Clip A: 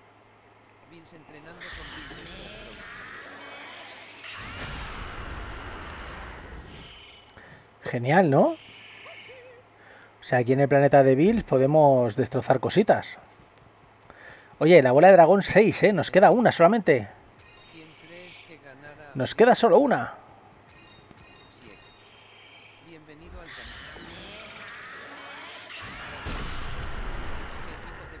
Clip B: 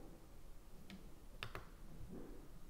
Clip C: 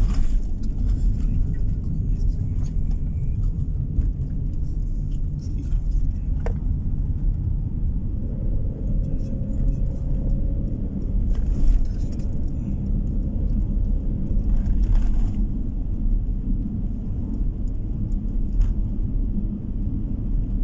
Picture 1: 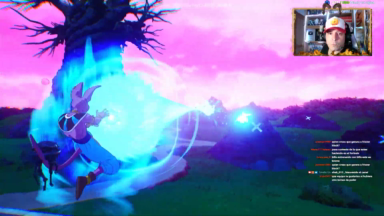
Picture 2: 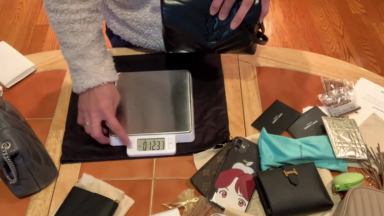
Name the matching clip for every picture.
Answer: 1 A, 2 B